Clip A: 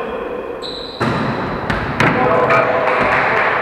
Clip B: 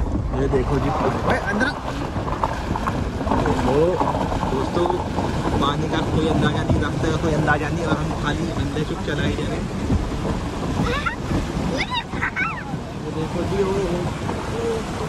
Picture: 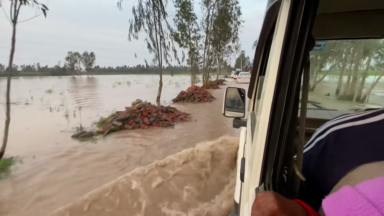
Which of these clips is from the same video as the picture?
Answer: B